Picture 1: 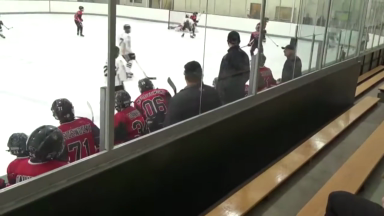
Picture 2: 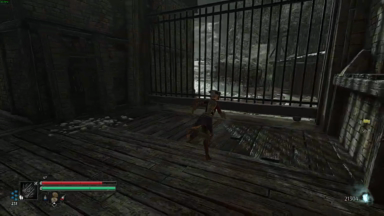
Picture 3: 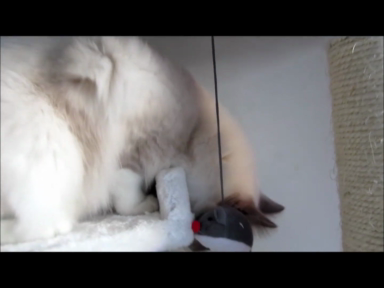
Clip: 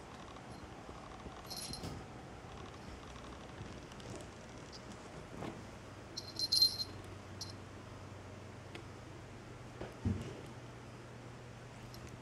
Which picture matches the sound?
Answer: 3